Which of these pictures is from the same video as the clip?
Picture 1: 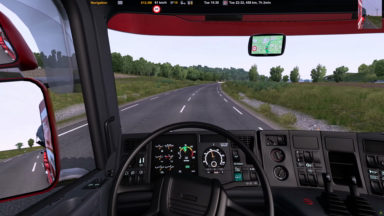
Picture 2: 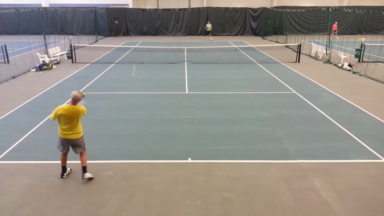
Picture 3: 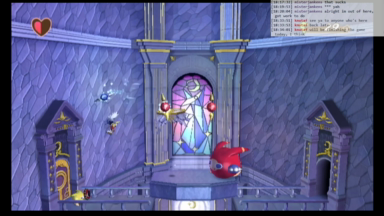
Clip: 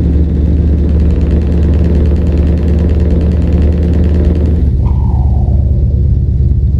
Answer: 1